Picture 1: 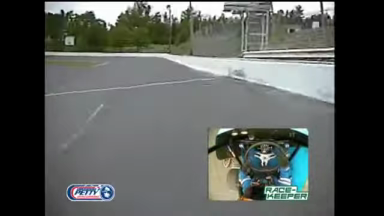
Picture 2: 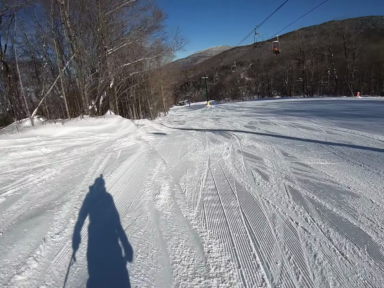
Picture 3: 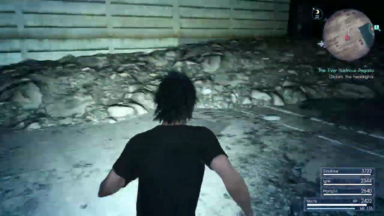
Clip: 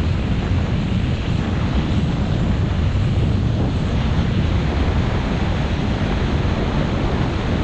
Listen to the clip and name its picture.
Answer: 2